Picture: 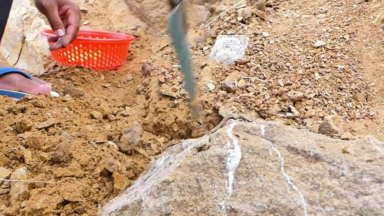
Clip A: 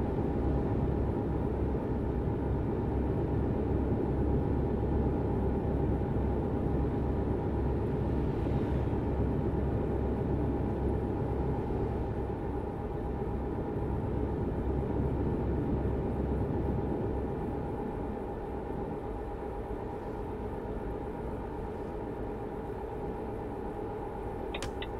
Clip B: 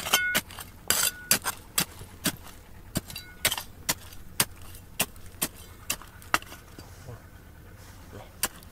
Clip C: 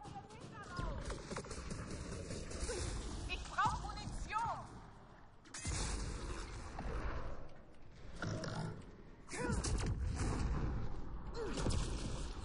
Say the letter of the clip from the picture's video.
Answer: B